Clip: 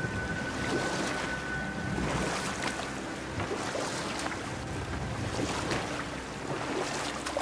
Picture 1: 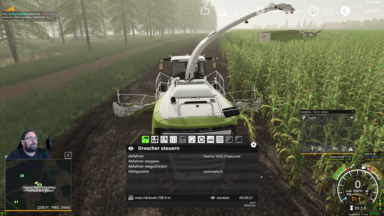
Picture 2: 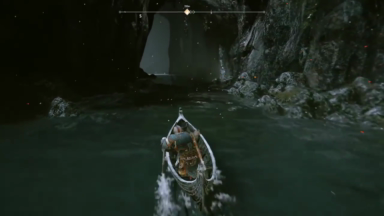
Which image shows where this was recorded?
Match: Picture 2